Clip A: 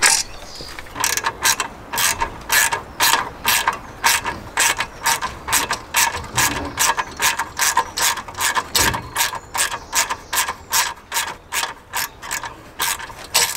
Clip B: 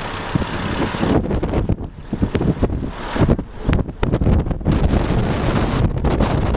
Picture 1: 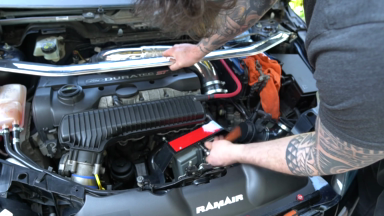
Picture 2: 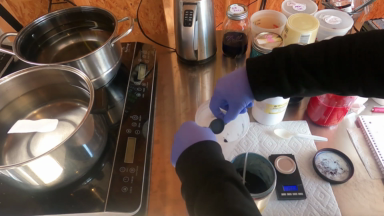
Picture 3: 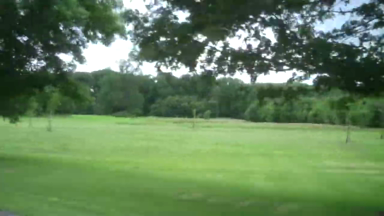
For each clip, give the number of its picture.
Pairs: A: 1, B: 3